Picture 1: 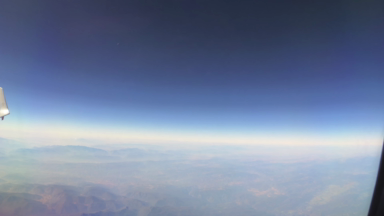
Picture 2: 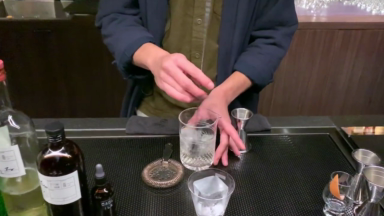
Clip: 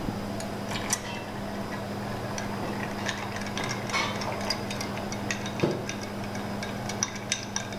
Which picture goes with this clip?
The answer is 2